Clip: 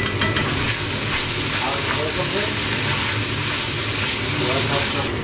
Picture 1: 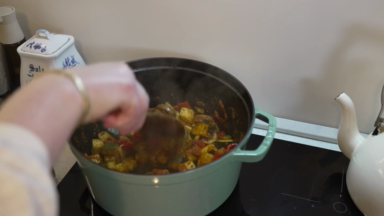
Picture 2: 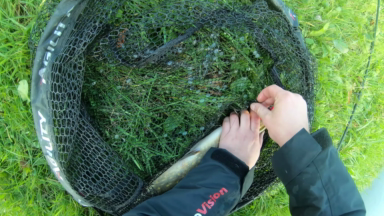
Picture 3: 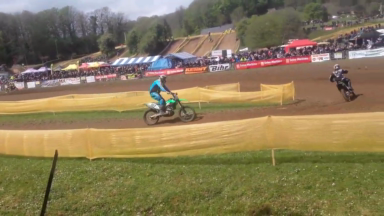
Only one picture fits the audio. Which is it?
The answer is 1